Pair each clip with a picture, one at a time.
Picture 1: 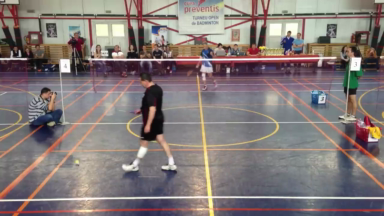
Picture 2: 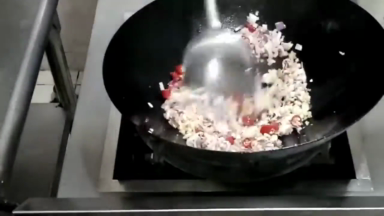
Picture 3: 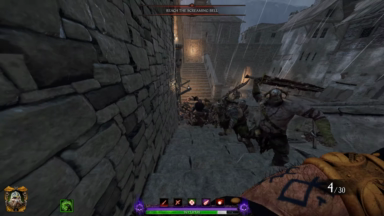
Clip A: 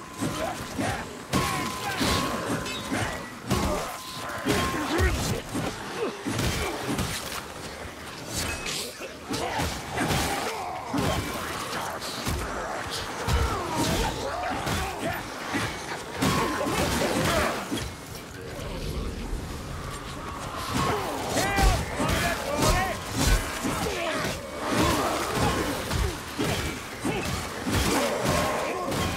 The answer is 3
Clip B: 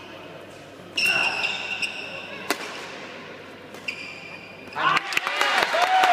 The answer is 1